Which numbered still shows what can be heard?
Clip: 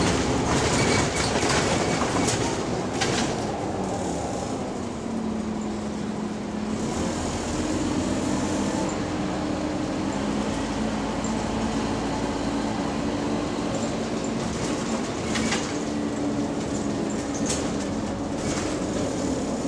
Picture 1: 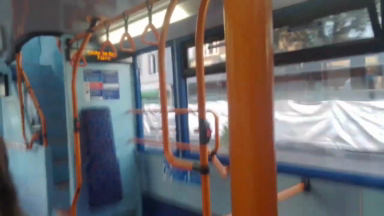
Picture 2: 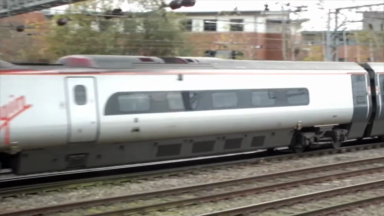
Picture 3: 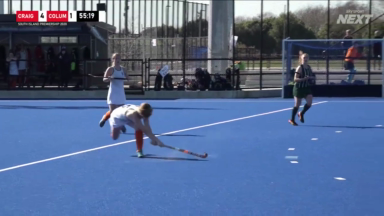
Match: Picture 1